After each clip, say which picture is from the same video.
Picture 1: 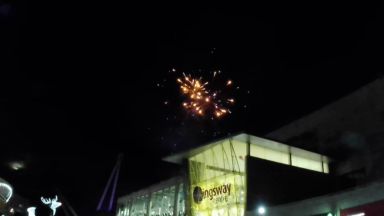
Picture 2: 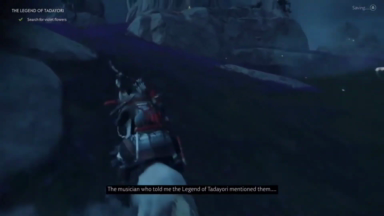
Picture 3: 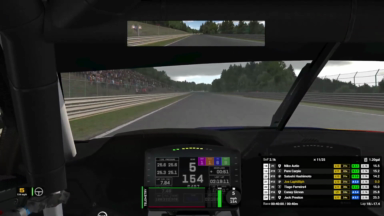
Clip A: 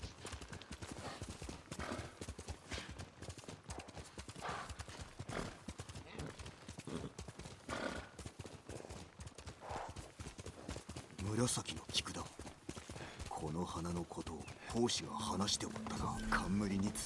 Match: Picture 2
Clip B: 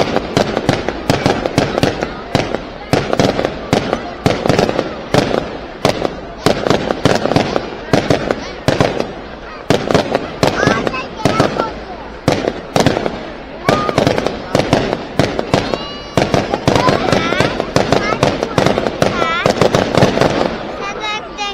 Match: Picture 1